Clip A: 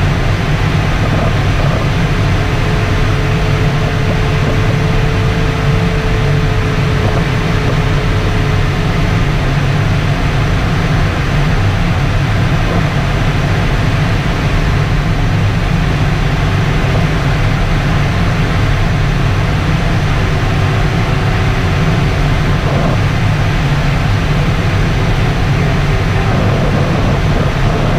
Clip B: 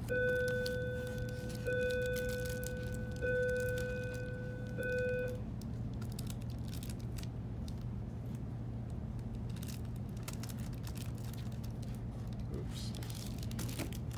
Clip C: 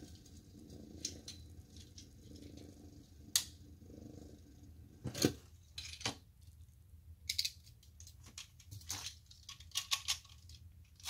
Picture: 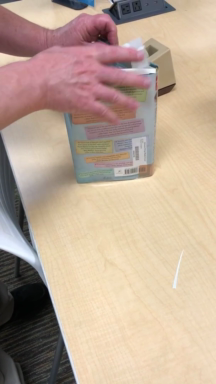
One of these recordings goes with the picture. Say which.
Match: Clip B